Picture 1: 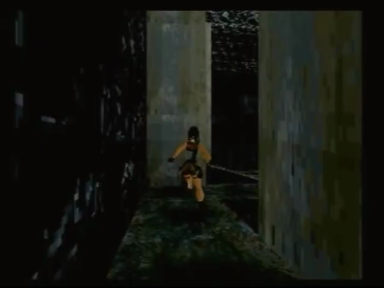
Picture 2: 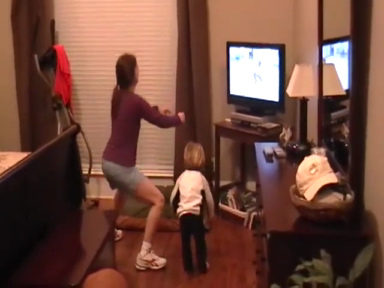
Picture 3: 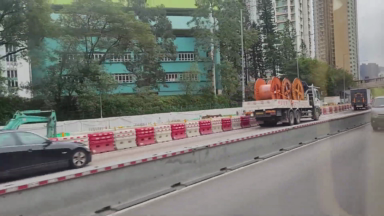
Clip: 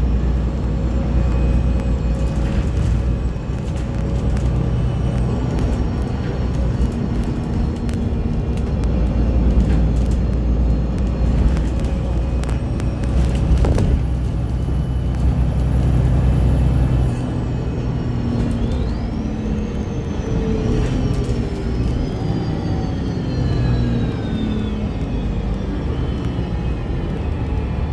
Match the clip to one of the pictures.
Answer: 3